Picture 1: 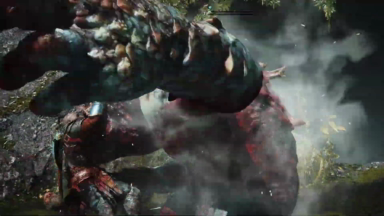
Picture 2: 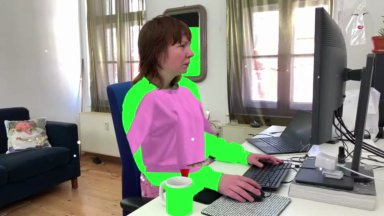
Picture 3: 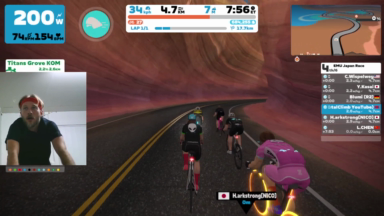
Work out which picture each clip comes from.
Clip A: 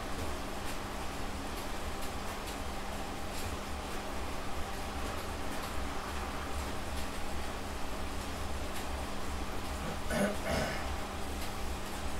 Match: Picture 3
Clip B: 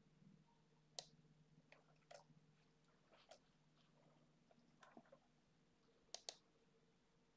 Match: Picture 2